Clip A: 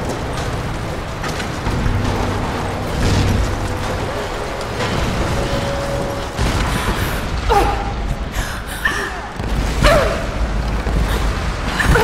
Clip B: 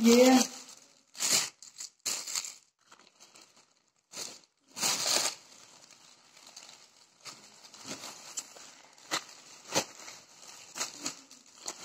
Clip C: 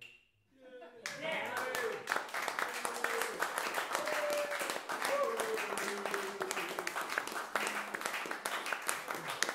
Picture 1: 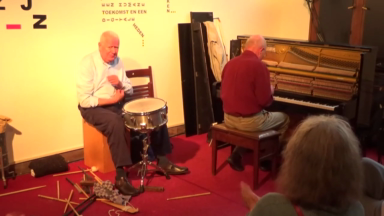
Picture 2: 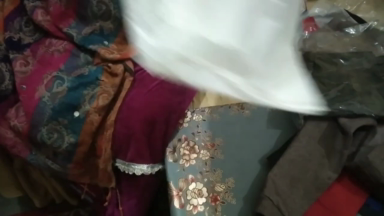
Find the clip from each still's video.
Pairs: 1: C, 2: B